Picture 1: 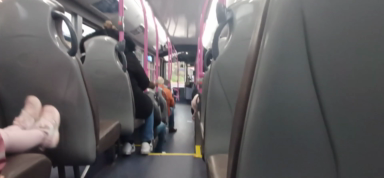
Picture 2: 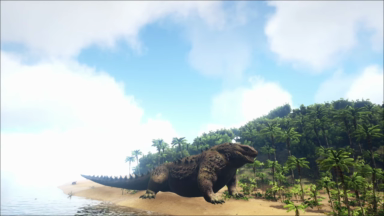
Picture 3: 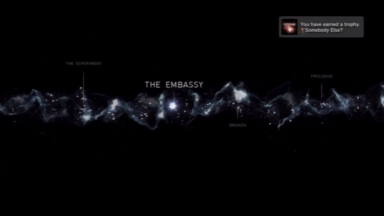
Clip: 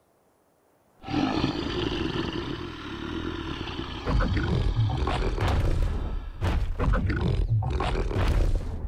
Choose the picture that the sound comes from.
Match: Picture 2